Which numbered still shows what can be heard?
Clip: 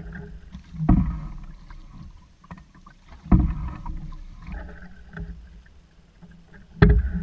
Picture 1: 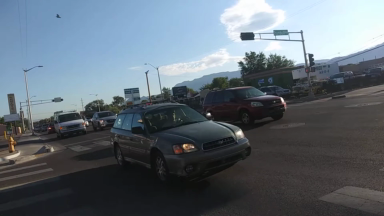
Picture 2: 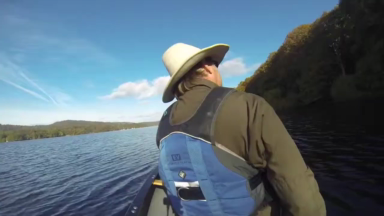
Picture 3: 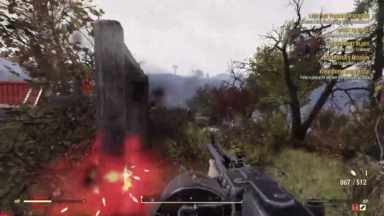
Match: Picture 2